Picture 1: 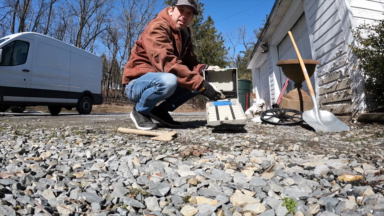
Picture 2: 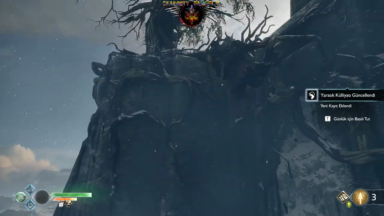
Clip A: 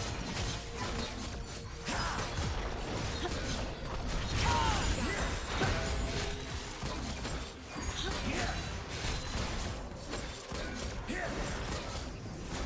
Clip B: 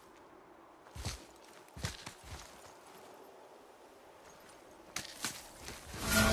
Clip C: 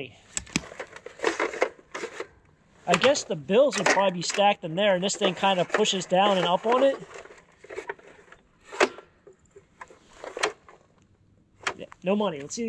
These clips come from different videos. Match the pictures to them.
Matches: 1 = C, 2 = B